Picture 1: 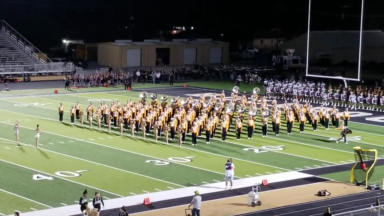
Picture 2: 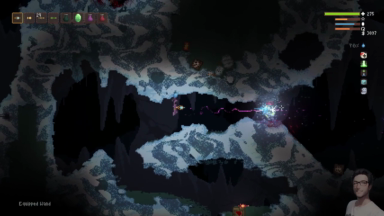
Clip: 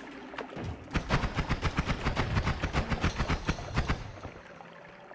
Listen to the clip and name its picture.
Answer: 2